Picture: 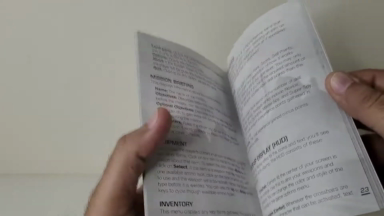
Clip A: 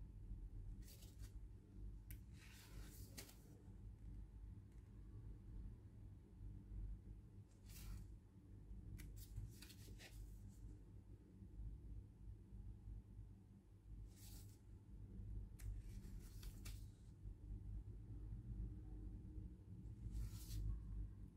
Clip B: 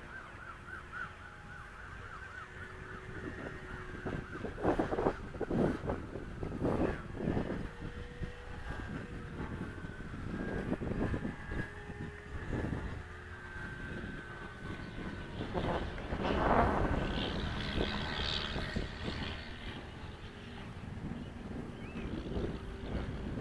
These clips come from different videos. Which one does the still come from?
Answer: A